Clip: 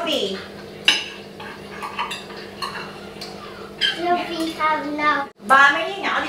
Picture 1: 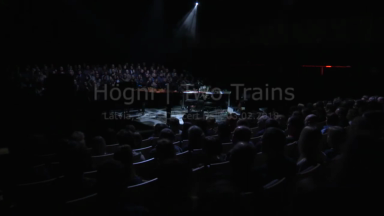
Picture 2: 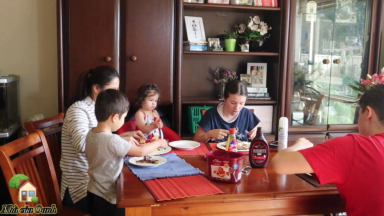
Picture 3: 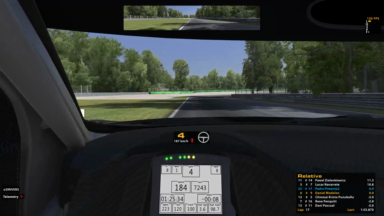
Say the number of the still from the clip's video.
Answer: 2